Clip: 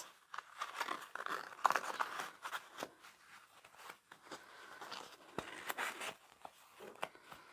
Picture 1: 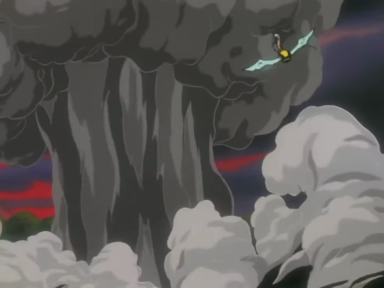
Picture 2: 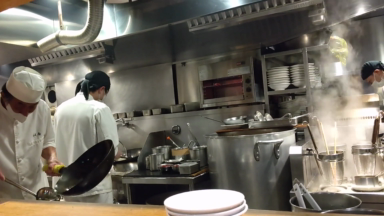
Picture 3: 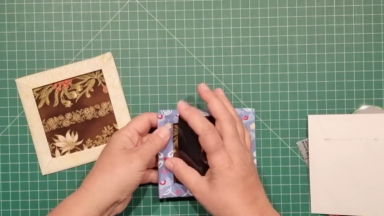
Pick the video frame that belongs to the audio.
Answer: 3